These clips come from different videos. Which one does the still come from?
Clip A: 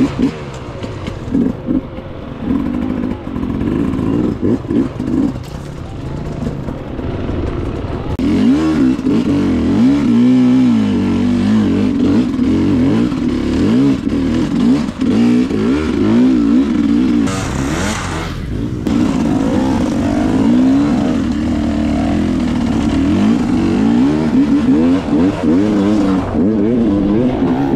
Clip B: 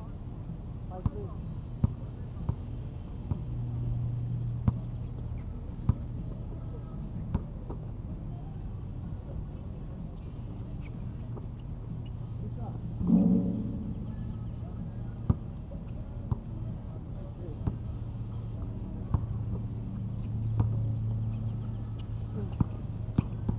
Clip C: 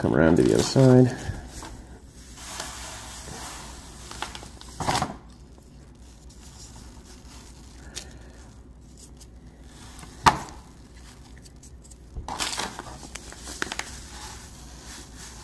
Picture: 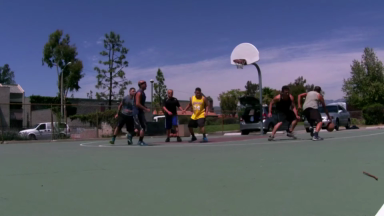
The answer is B